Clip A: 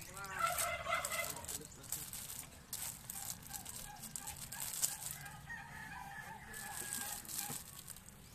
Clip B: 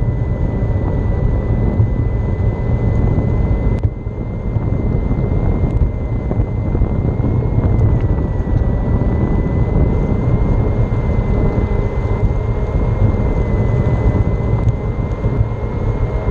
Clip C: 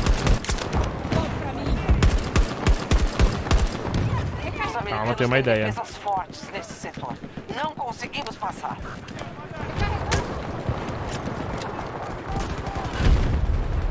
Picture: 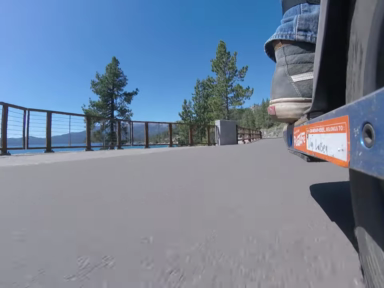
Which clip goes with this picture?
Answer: B